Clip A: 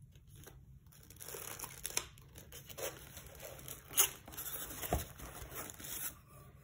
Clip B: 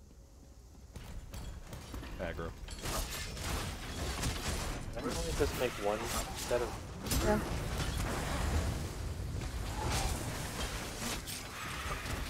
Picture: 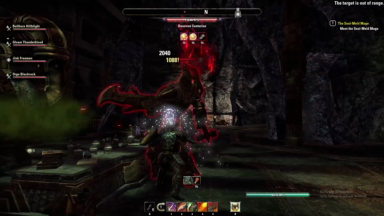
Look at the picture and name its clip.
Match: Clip B